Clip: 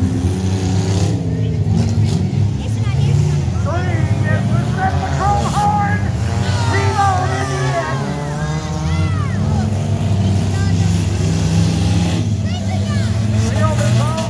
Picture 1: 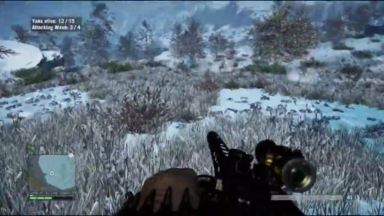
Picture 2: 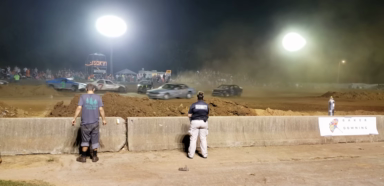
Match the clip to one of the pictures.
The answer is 2